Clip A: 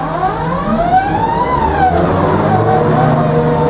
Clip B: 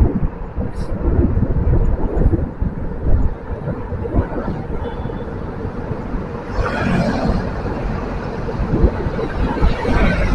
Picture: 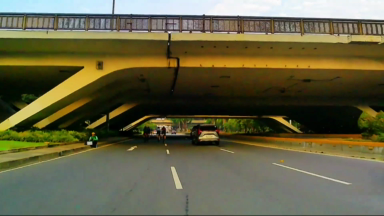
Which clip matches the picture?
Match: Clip B